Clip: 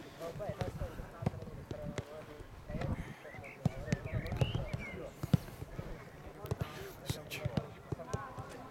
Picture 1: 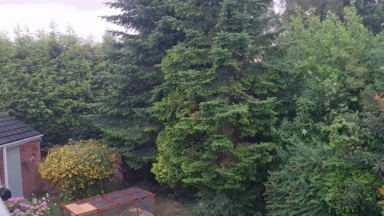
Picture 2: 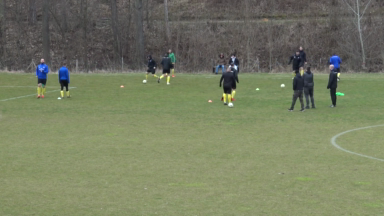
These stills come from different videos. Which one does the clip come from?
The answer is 2